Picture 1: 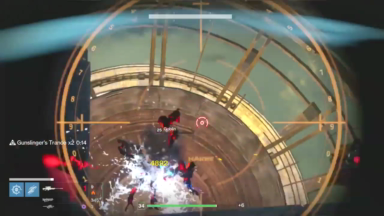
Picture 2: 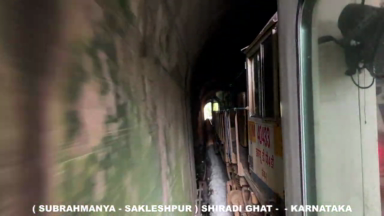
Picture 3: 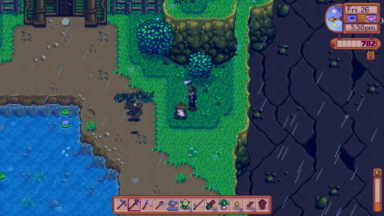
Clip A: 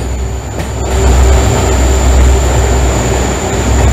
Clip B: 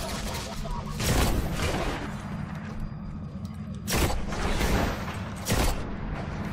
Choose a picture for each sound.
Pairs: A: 2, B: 1